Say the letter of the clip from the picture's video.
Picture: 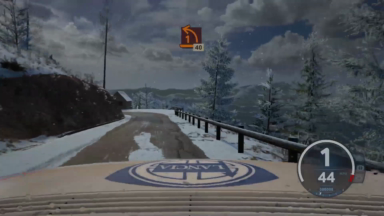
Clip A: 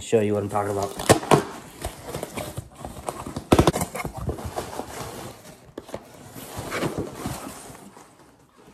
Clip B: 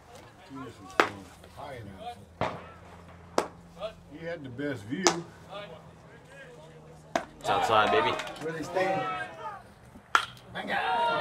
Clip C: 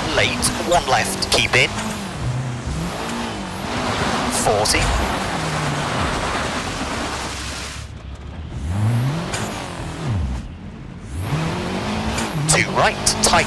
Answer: C